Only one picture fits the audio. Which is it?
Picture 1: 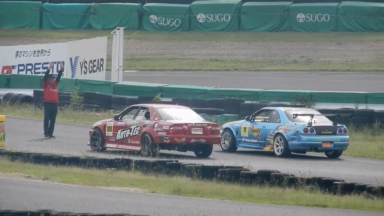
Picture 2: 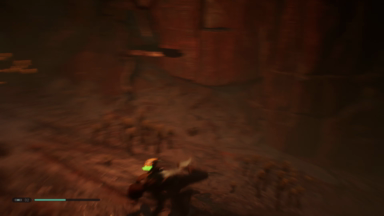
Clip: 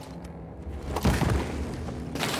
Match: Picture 2